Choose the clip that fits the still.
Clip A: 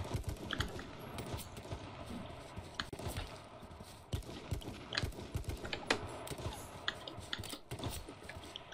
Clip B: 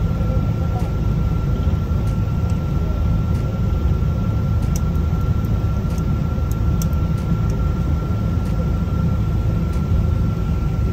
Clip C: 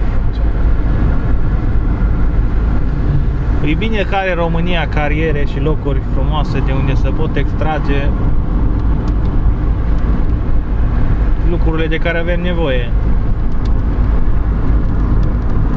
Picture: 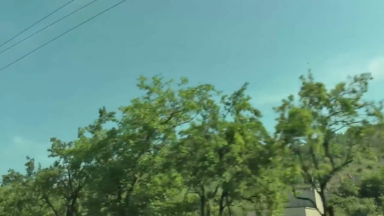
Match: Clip C